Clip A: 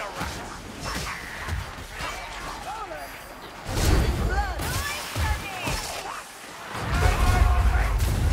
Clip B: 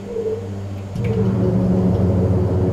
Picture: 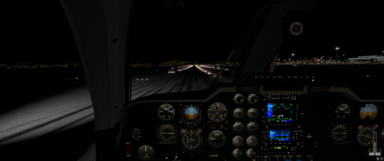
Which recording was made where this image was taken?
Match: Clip B